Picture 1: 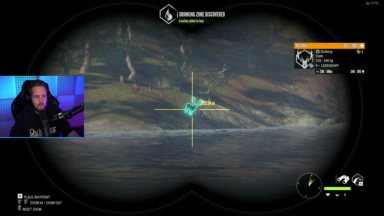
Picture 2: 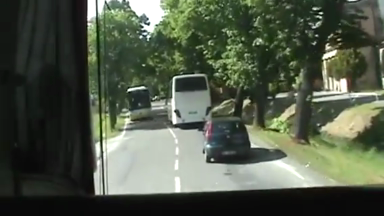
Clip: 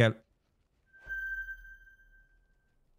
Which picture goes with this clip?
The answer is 1